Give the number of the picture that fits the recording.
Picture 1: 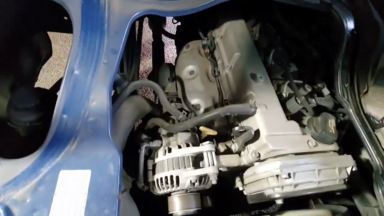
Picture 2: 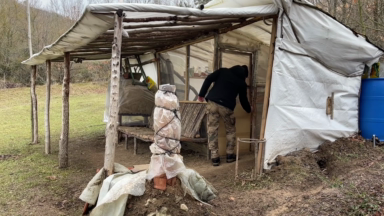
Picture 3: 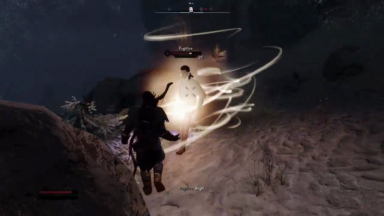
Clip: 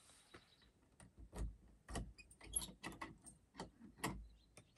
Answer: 2